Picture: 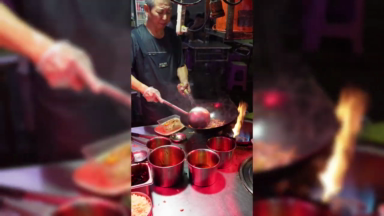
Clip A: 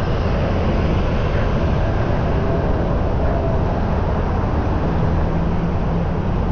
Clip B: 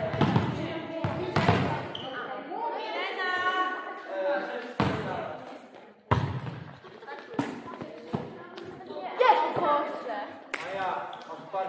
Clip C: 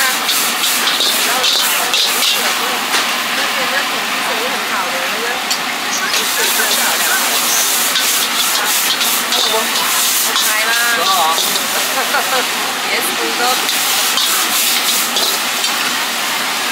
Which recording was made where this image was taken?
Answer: C